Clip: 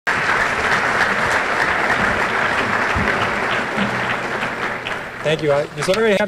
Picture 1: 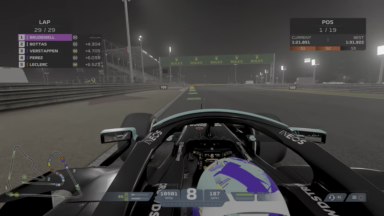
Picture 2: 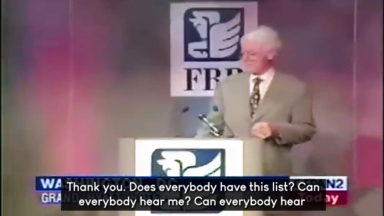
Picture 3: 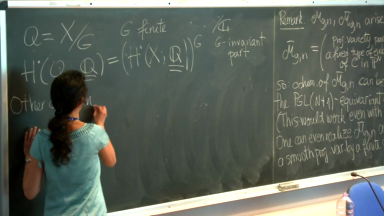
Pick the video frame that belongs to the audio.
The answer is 2